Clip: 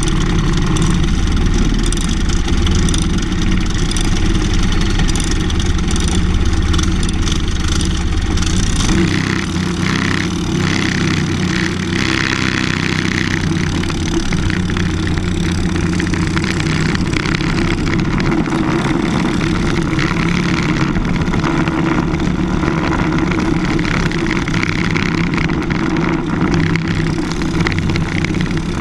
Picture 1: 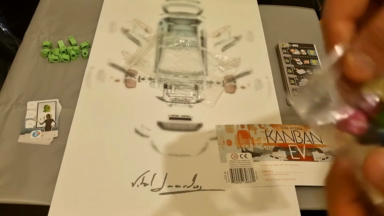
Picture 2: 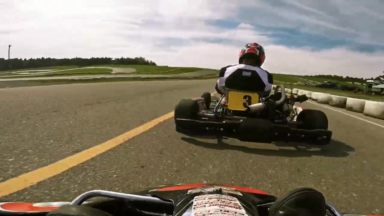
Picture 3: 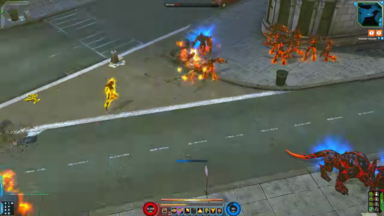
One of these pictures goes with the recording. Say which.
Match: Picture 2